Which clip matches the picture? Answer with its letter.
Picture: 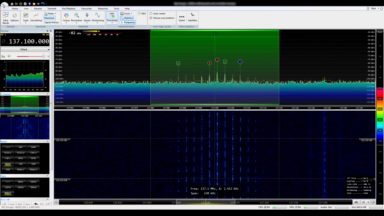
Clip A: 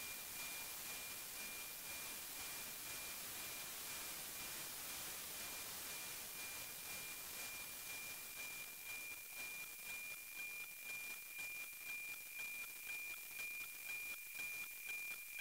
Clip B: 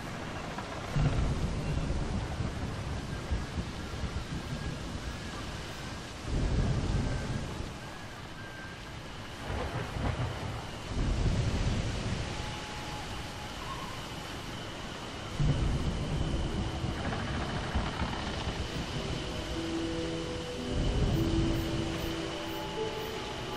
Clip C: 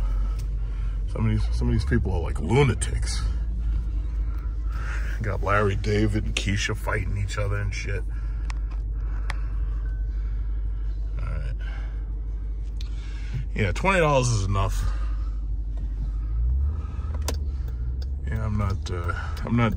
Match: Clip A